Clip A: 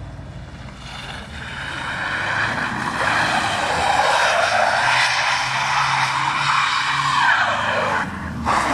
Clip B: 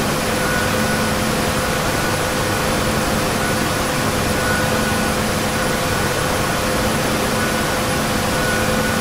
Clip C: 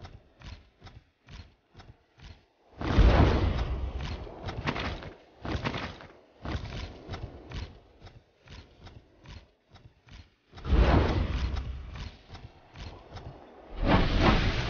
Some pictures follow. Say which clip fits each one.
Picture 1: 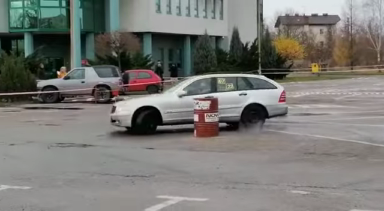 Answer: A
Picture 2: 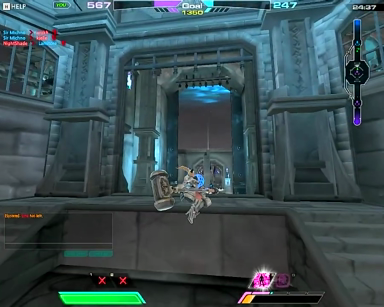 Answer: C